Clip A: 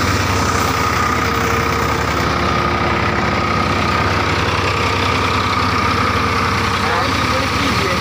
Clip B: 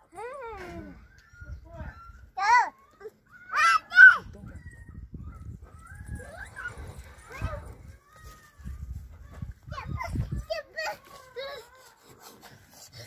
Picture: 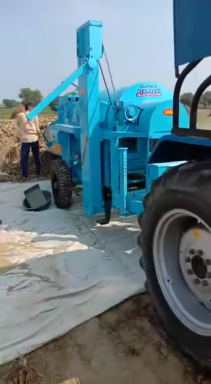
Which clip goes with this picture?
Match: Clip A